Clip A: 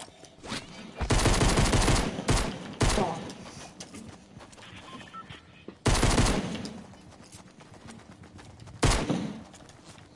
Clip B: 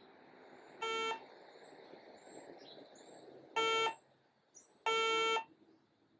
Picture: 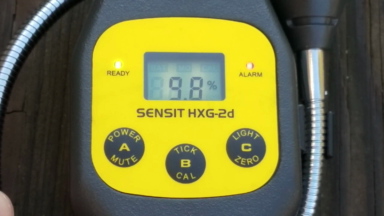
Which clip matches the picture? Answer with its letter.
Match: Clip B